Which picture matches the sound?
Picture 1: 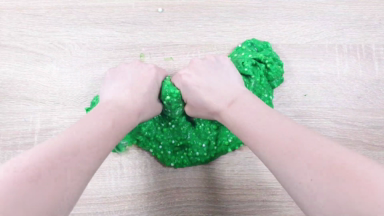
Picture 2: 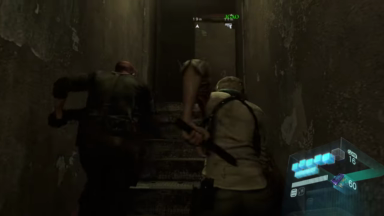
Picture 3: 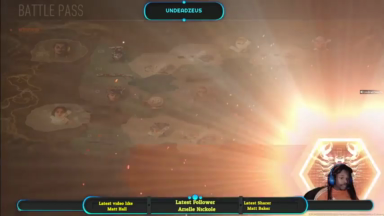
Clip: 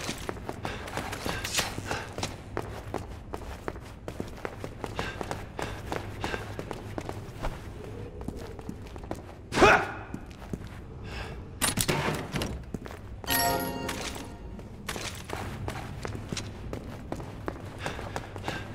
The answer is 2